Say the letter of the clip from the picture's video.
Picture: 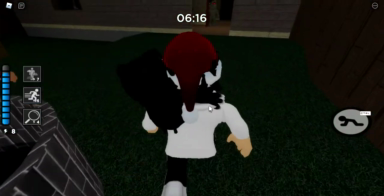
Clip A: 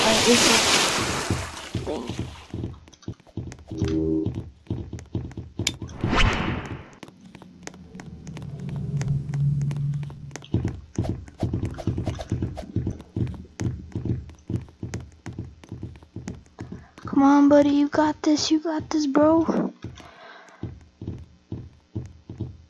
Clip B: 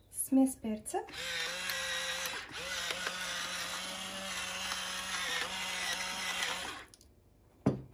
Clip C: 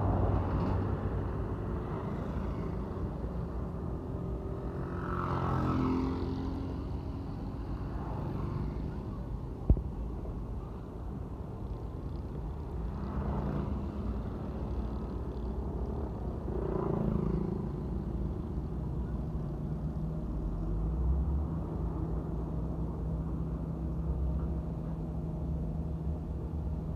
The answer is A